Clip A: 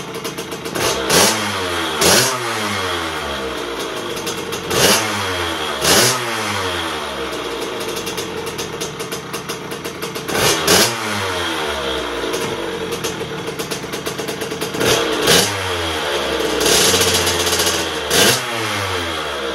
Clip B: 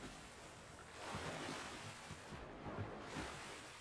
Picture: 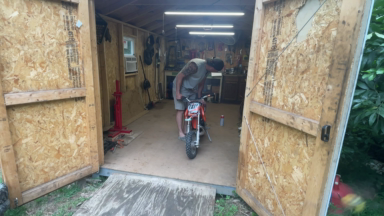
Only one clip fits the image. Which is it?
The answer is A